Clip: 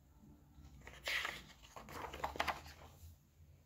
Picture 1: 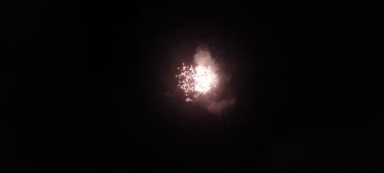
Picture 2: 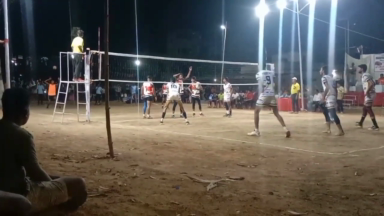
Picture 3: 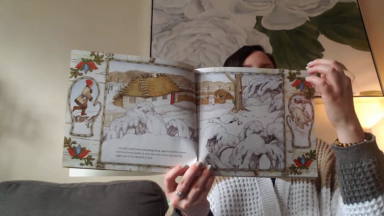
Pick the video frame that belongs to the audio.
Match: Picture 3